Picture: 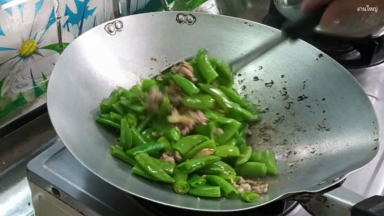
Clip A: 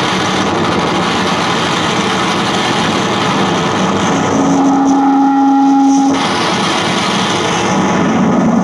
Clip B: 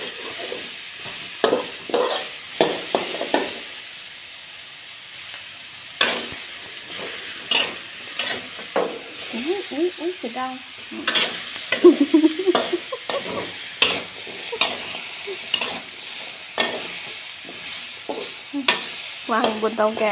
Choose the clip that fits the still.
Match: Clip B